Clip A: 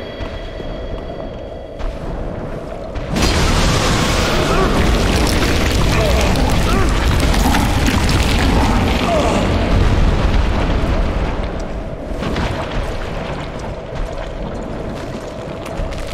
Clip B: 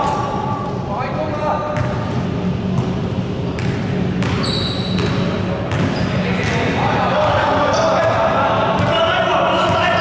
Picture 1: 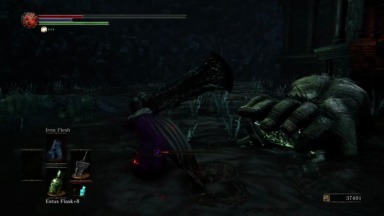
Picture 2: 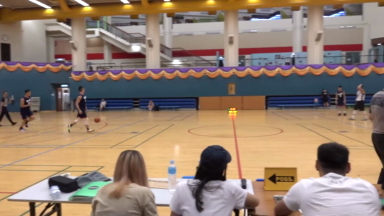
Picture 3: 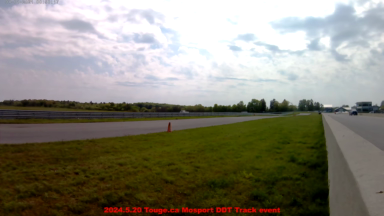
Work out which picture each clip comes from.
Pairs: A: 1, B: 2